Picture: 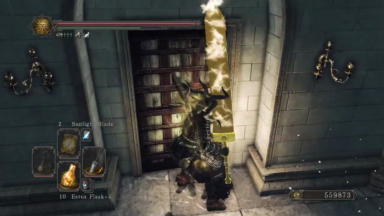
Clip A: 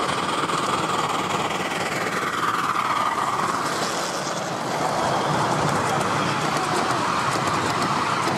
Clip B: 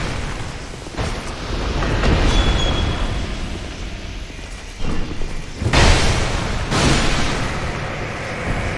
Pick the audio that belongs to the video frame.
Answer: B